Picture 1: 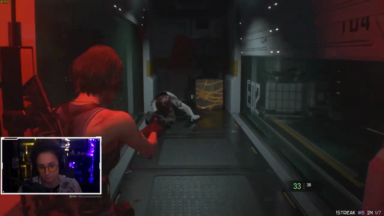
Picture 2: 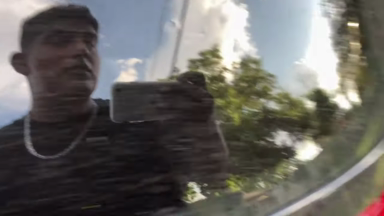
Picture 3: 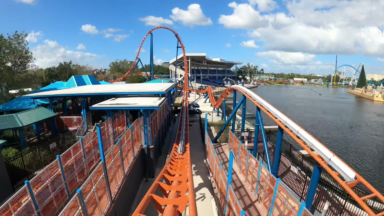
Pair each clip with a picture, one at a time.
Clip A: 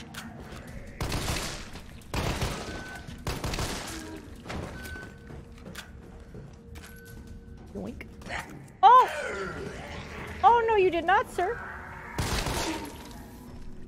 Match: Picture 1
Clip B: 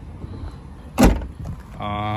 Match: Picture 2